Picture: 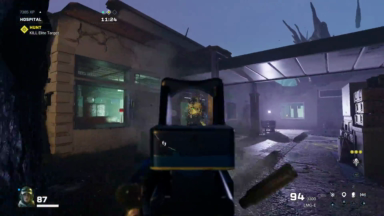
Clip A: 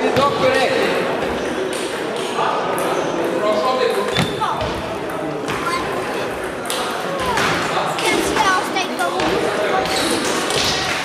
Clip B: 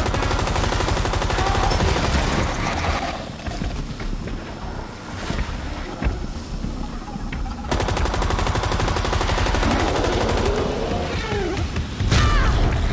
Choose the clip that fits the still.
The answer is B